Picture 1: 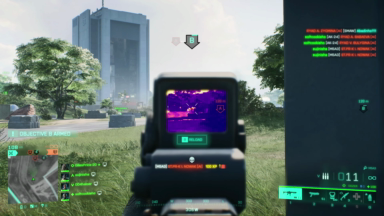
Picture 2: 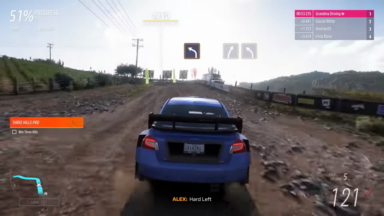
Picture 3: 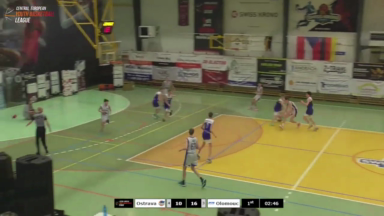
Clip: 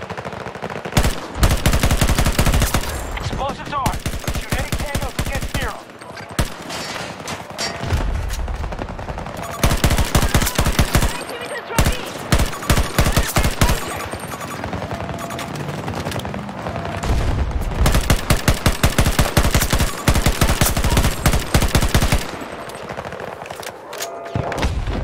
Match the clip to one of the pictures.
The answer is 1